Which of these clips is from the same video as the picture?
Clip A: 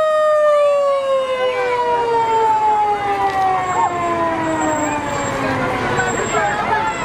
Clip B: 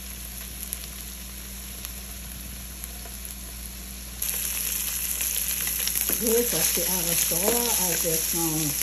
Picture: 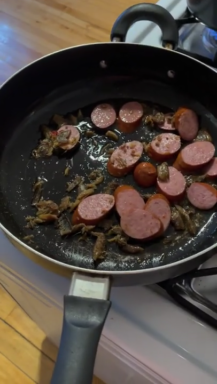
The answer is B